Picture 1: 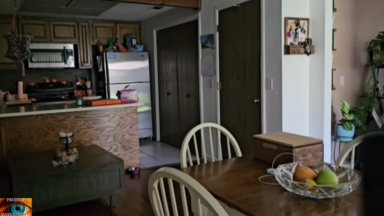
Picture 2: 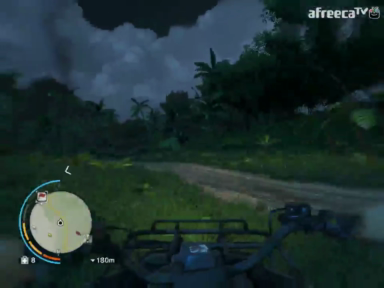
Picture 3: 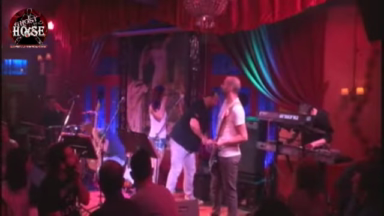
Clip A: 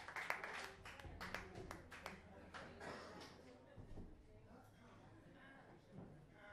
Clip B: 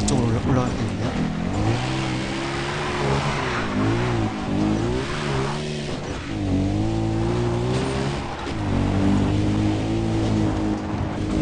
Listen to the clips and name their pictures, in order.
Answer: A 3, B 2